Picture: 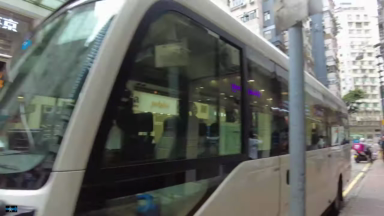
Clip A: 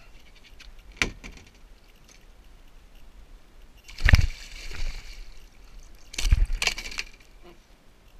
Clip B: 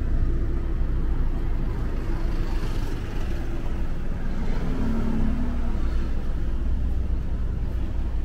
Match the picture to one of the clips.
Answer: B